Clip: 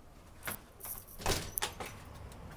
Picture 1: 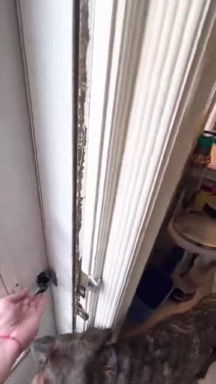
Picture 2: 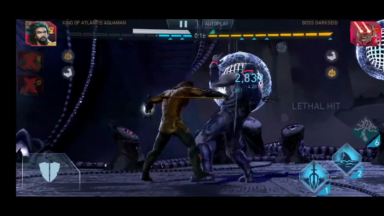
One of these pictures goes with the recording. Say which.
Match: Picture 1